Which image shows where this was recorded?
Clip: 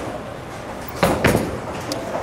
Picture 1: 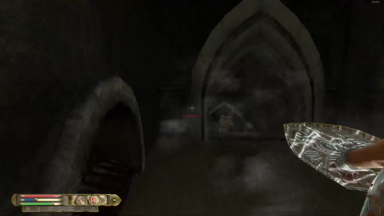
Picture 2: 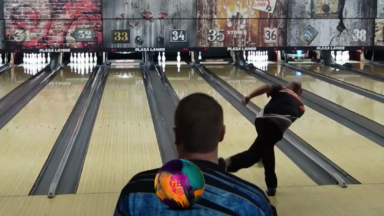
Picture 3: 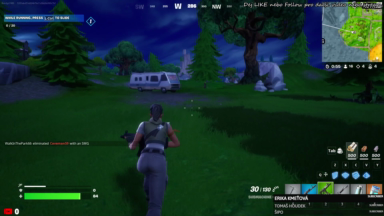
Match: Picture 2